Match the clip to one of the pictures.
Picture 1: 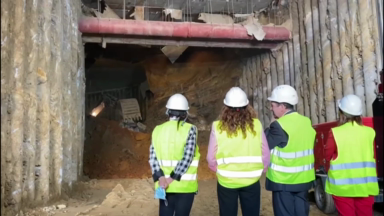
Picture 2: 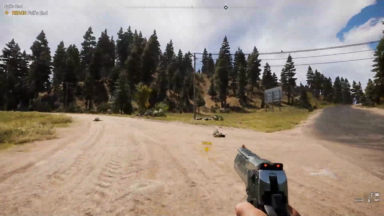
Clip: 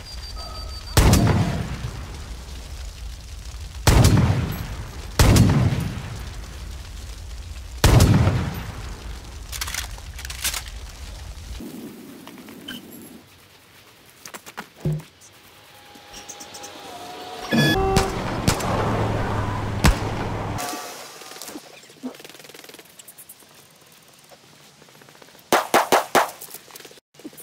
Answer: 2